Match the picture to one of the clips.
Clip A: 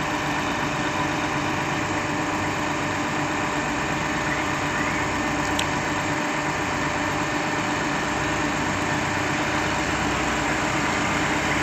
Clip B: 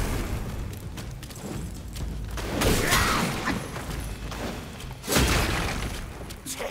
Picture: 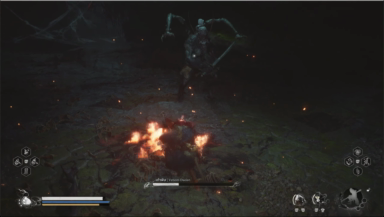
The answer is B